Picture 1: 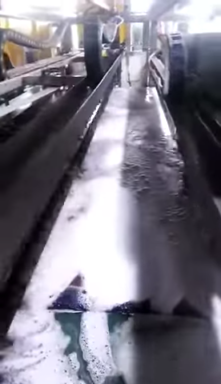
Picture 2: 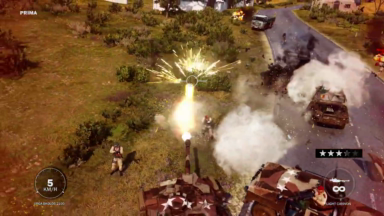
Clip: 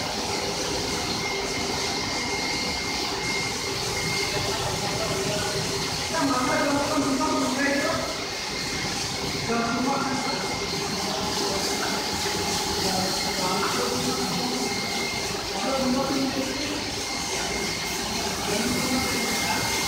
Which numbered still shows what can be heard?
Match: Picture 1